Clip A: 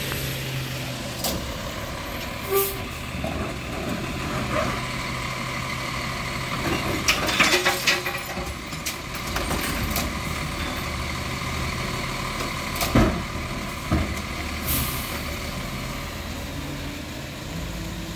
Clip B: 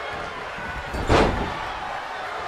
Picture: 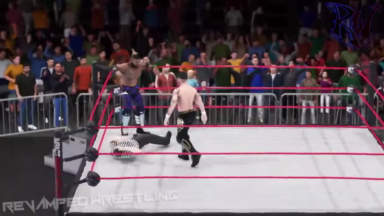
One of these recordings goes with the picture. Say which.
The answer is B